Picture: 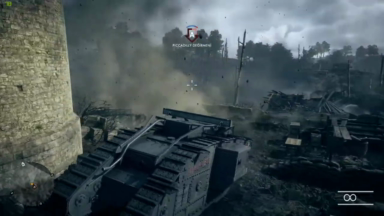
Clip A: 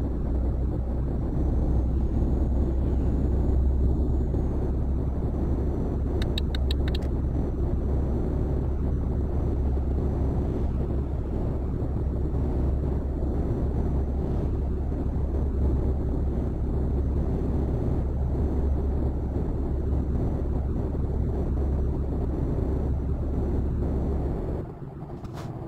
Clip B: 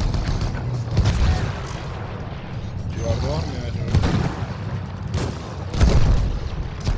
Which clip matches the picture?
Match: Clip B